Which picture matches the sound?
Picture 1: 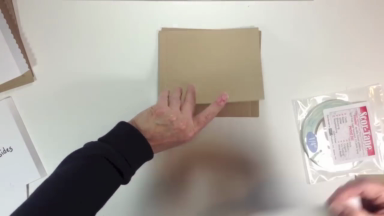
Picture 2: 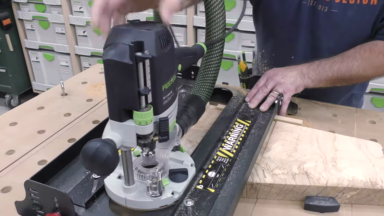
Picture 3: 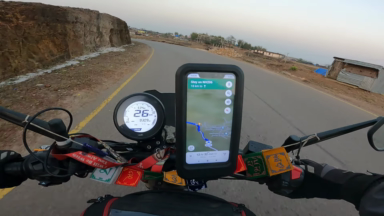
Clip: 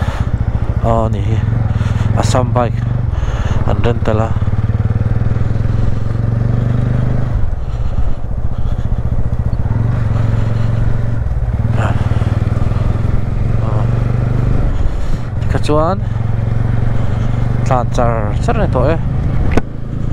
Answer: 3